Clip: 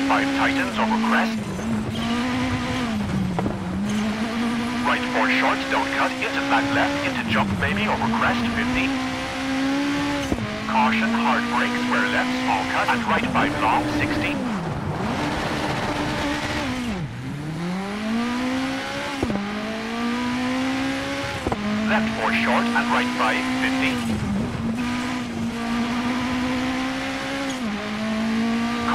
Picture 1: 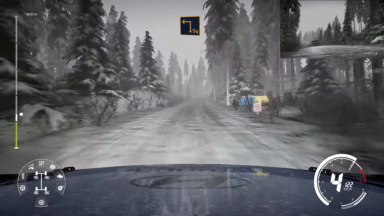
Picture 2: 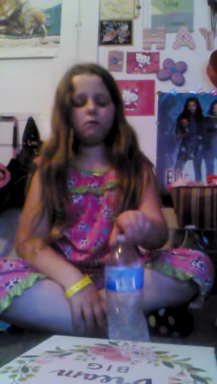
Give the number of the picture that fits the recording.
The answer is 1